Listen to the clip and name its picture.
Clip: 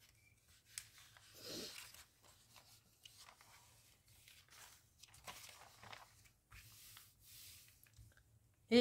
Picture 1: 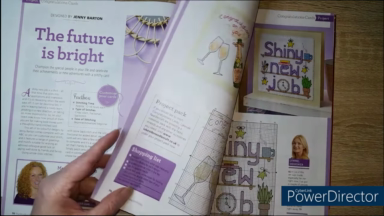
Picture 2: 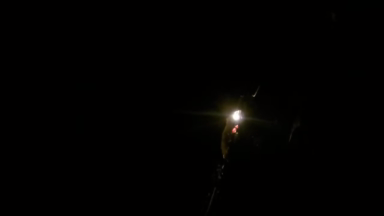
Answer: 1